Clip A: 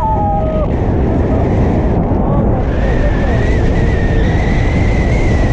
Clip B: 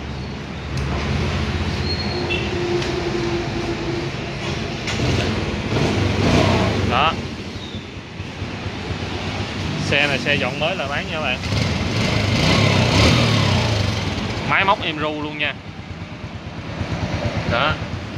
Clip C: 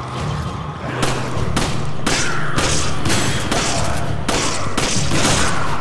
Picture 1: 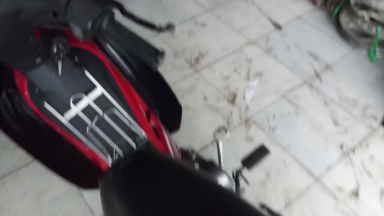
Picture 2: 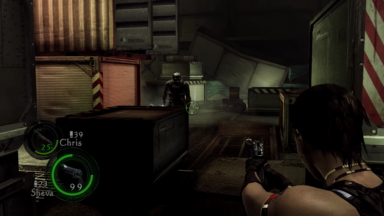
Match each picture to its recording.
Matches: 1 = B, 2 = C